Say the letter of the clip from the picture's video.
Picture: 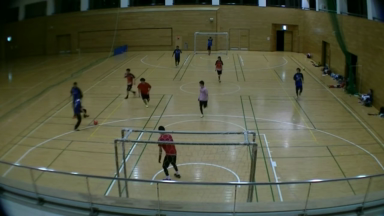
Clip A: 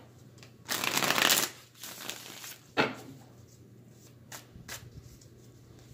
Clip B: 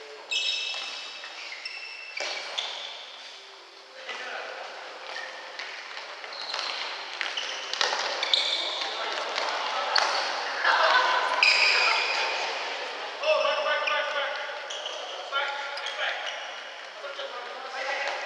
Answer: B